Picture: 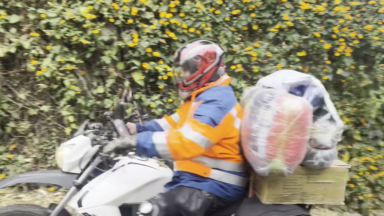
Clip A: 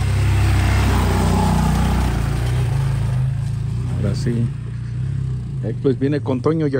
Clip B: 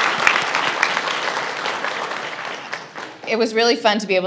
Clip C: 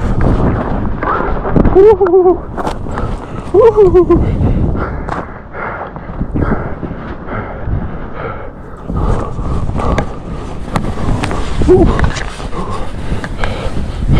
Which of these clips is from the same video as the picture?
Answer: A